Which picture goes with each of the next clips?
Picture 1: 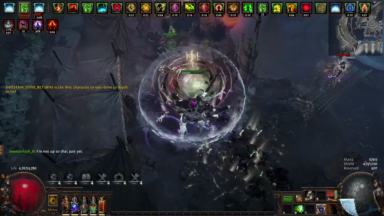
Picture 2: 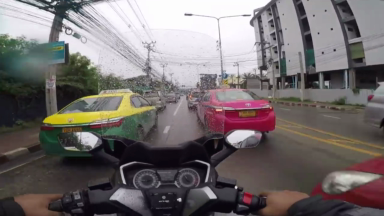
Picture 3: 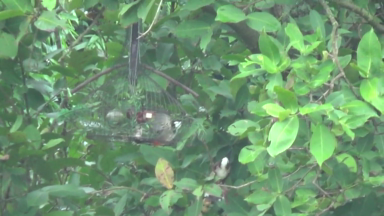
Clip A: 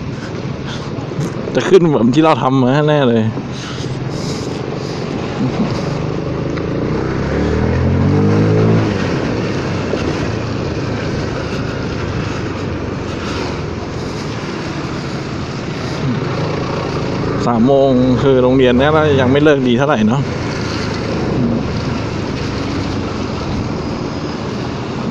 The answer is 2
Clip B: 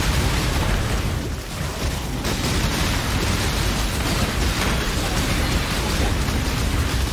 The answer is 1